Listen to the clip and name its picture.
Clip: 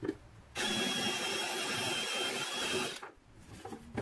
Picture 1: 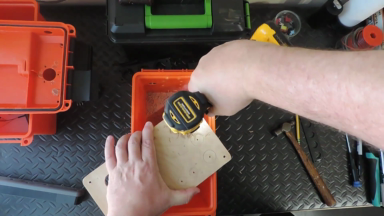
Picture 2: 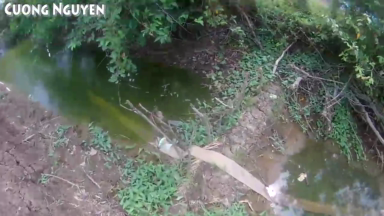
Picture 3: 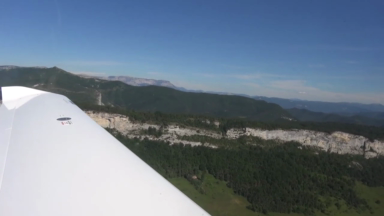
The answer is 1